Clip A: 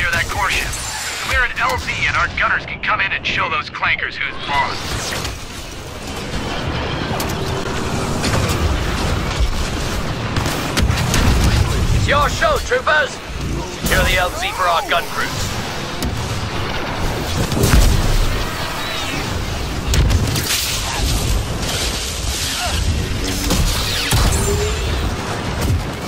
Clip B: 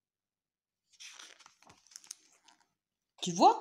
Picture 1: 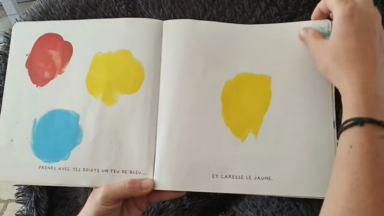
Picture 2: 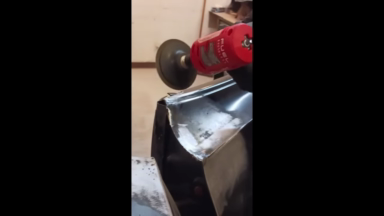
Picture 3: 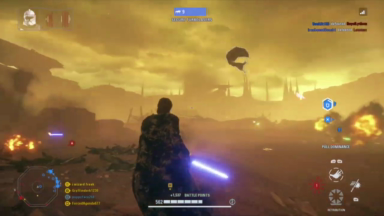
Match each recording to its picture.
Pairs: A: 3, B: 1